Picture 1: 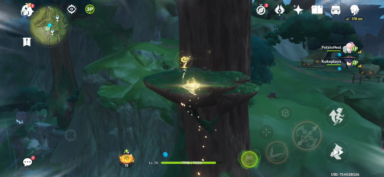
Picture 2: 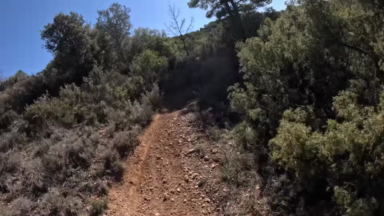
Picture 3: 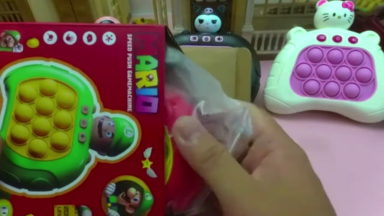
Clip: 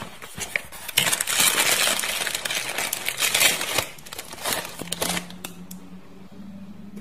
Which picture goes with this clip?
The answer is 3